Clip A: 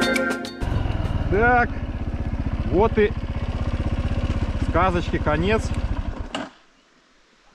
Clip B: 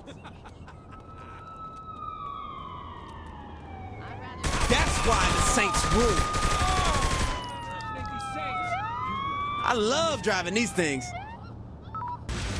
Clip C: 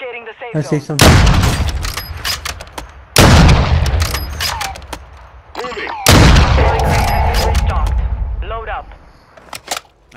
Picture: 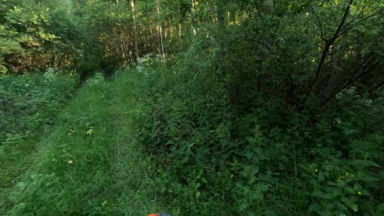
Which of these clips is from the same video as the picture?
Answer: A